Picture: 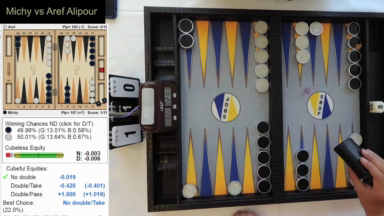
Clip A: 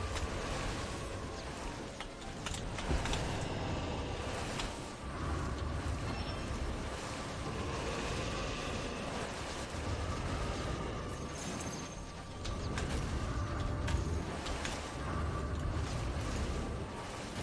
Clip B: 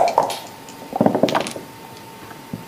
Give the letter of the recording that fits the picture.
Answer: B